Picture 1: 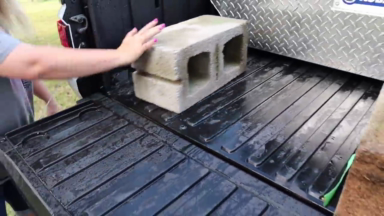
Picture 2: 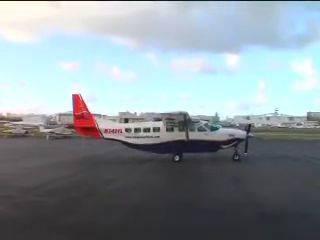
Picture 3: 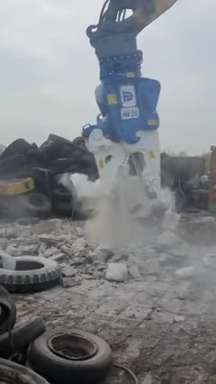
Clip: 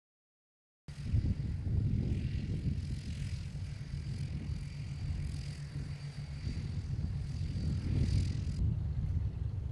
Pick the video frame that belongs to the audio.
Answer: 2